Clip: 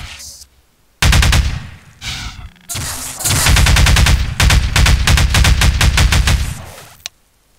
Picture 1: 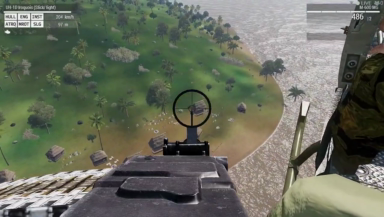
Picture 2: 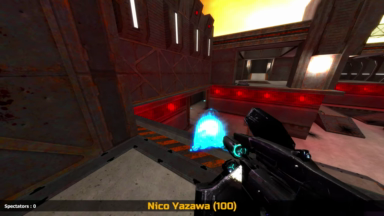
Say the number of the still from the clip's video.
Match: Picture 2